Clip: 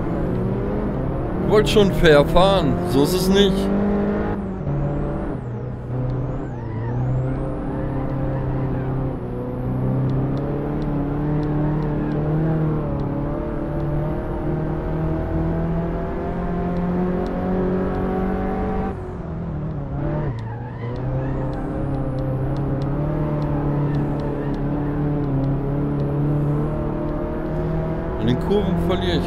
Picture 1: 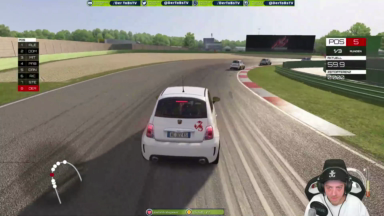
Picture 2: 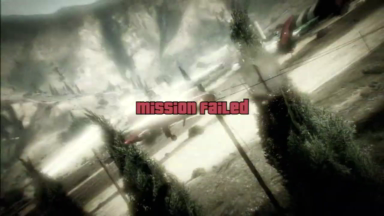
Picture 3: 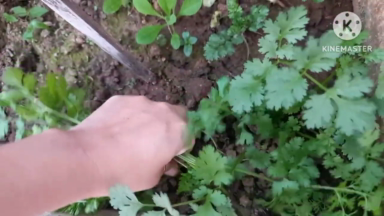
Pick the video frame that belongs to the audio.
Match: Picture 1